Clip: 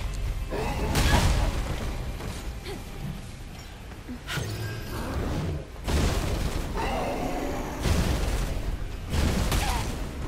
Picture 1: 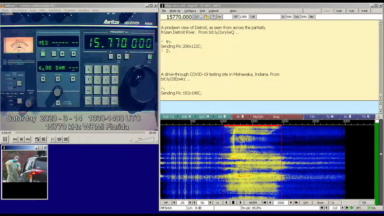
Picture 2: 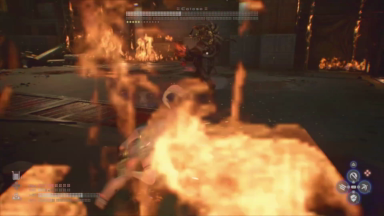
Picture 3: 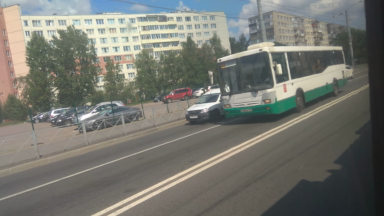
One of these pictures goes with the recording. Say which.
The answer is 2